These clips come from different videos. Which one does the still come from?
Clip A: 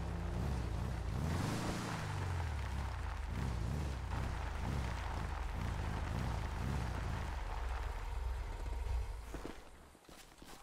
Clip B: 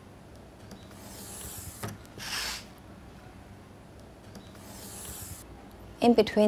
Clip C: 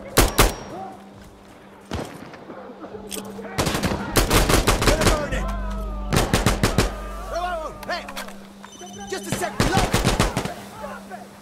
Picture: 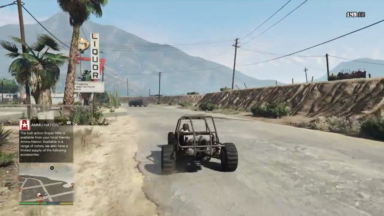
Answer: A